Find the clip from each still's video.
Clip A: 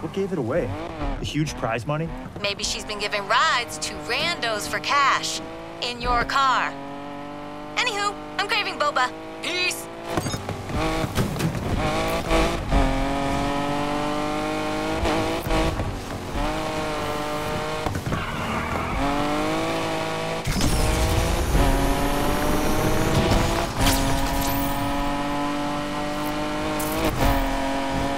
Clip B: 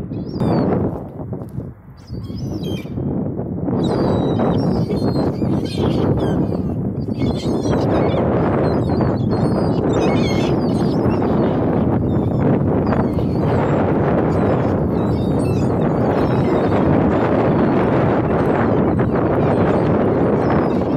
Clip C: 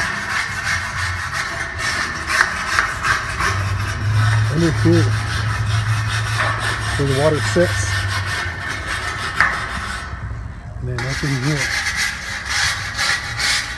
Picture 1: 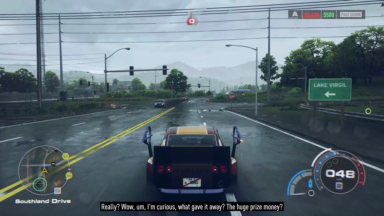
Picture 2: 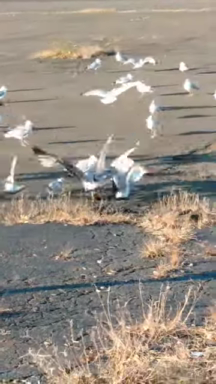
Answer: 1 A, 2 B